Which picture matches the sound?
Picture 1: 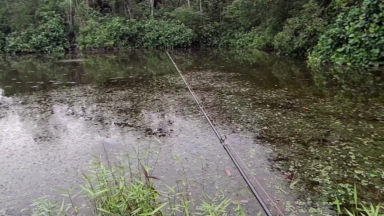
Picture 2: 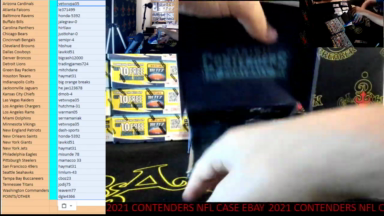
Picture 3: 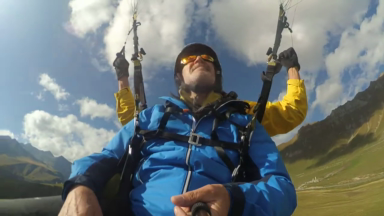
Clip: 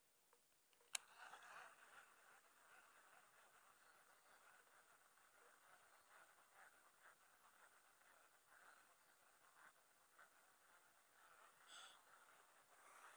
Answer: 1